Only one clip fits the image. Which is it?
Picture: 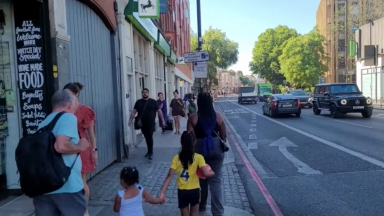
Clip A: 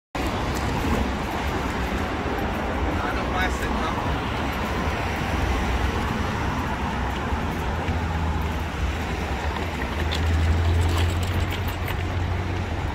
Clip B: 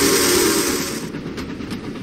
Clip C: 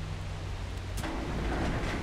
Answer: A